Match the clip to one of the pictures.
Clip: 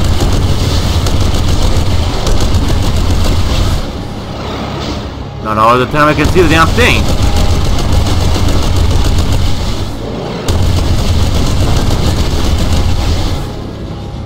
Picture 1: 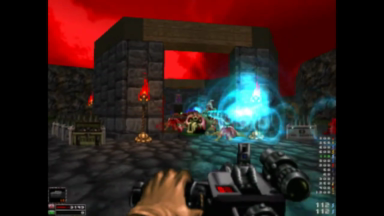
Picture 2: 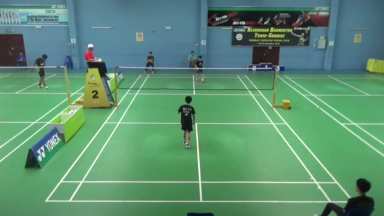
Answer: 1